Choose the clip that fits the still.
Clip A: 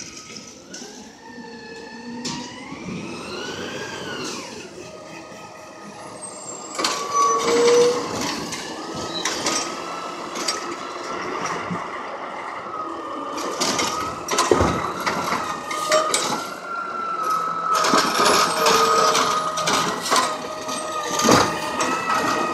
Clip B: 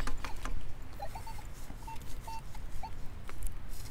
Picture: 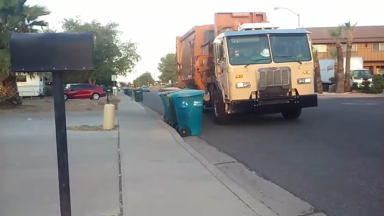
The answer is A